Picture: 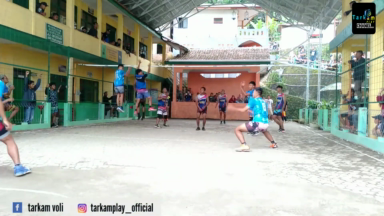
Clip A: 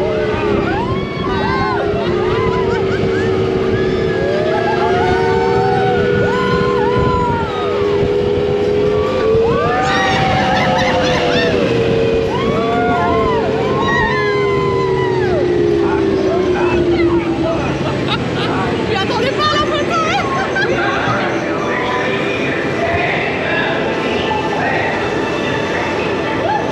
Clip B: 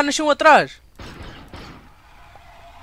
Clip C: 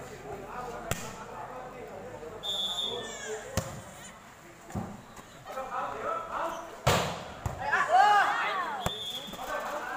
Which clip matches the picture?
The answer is C